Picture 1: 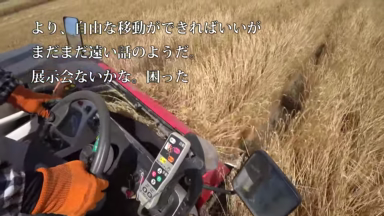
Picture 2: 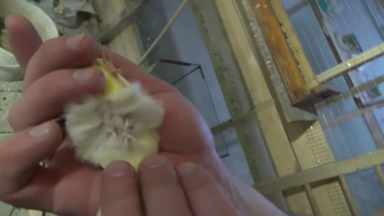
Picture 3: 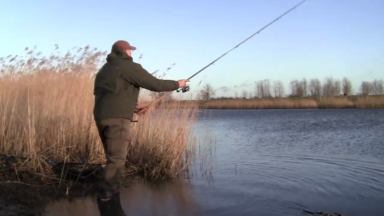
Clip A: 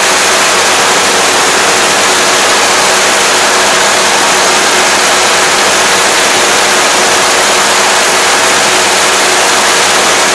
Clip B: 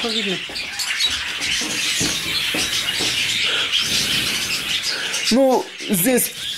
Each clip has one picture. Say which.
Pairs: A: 1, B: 2